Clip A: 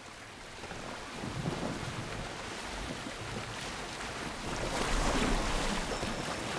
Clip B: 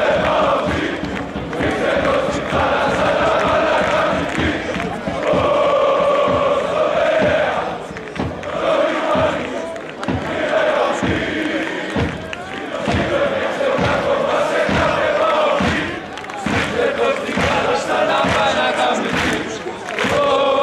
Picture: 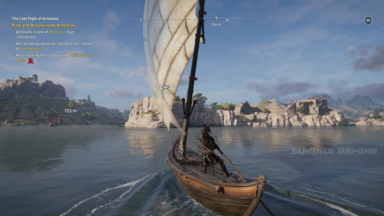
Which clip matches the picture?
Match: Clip A